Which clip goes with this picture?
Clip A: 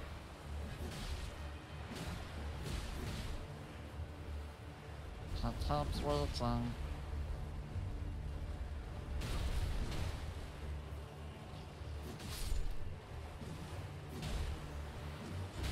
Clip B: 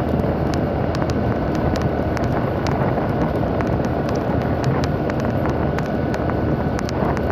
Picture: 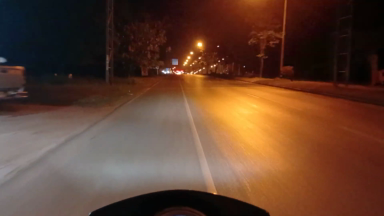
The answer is B